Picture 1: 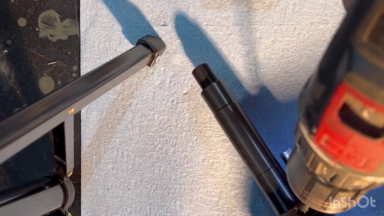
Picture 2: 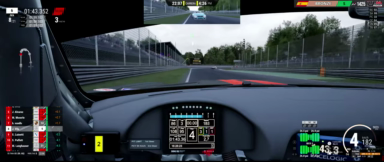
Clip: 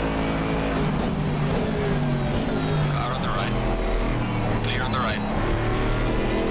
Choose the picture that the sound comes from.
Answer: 2